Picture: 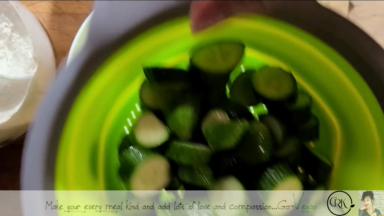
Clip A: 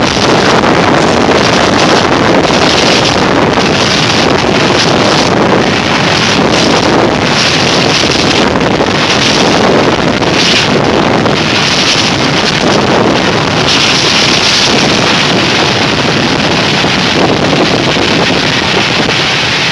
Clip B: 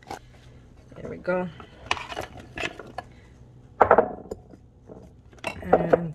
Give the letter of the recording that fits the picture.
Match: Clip B